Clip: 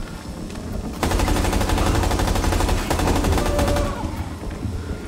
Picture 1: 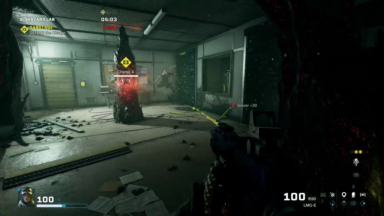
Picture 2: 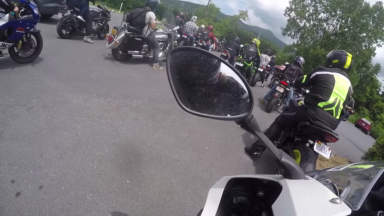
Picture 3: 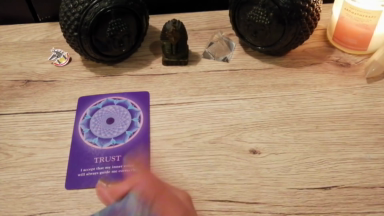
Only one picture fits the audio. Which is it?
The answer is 1